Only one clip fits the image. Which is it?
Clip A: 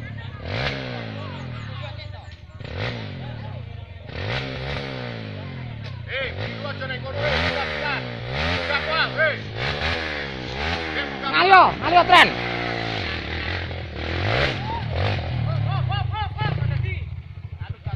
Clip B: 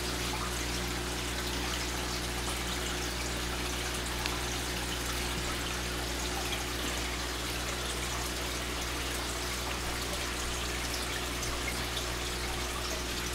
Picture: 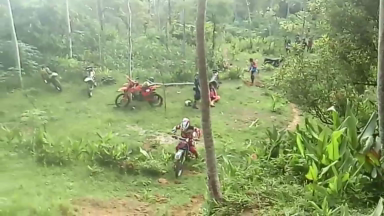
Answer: A